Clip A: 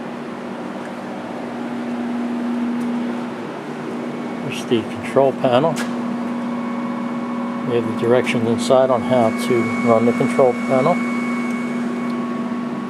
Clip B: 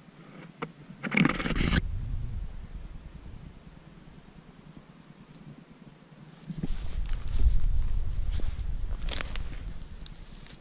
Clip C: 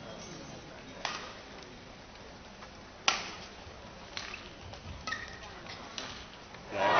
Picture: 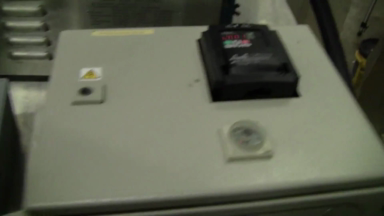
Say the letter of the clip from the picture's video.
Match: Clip A